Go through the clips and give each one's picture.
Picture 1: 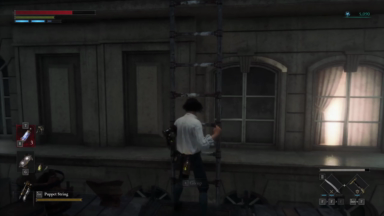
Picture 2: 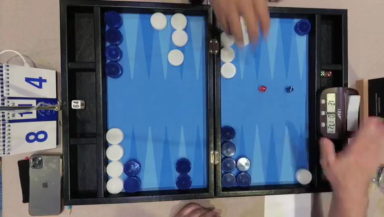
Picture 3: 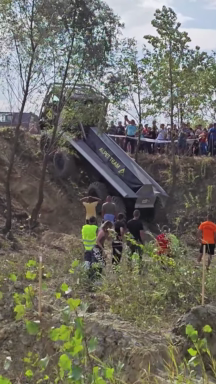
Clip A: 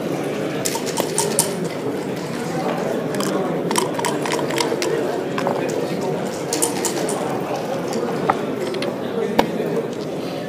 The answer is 2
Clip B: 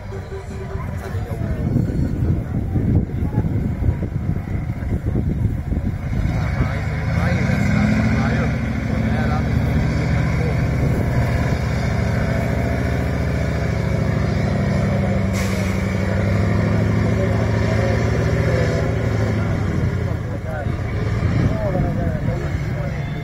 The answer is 3